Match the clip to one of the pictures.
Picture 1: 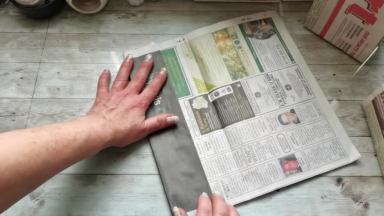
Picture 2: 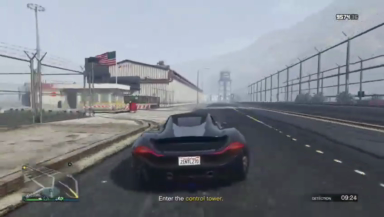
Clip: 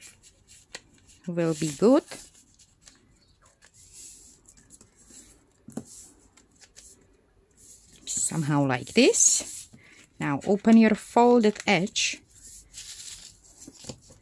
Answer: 1